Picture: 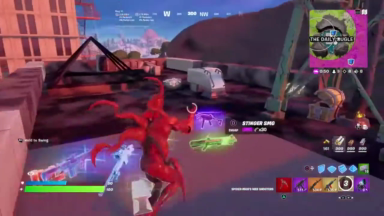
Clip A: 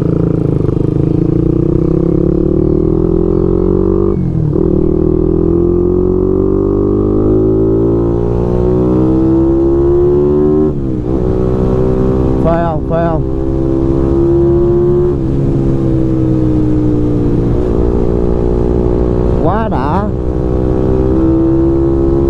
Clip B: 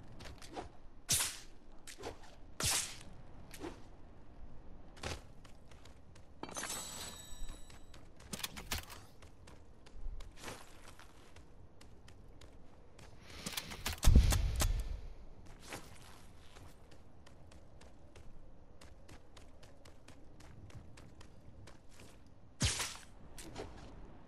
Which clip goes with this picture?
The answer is B